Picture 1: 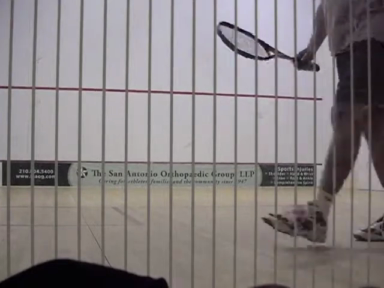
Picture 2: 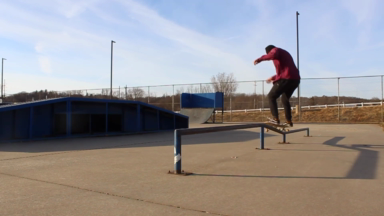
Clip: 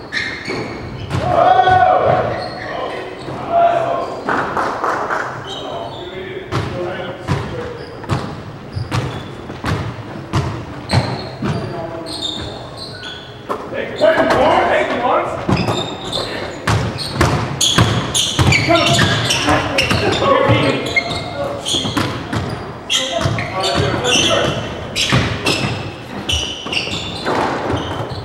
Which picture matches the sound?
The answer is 1